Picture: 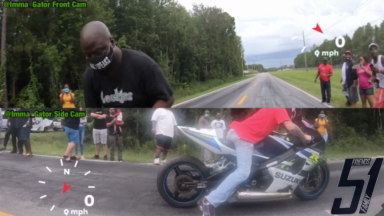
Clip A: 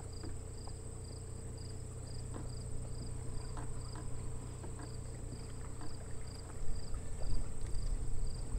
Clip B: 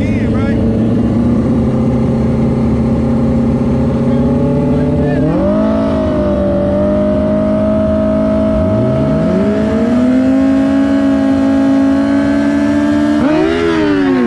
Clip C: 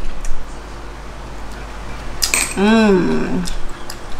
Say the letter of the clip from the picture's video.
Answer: B